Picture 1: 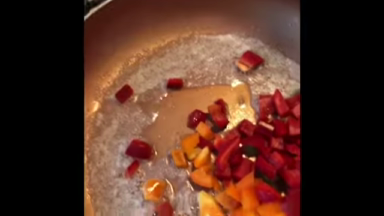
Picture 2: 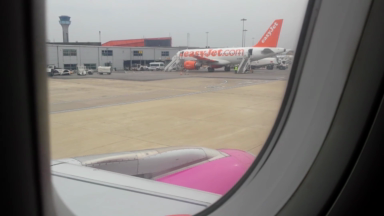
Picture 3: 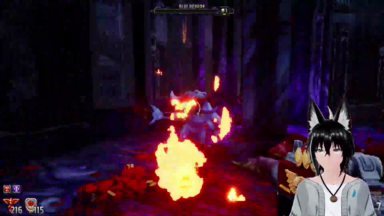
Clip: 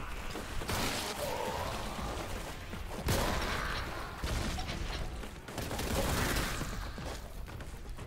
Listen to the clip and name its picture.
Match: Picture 3